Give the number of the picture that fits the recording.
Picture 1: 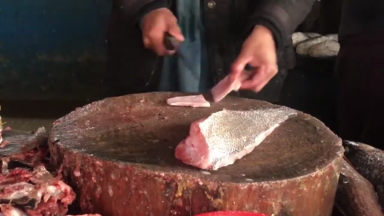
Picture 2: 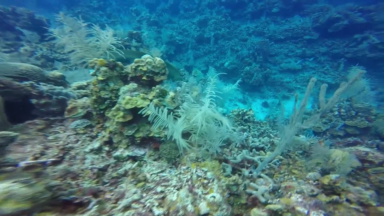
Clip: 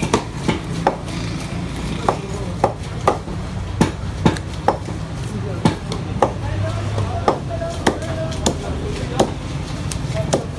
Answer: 1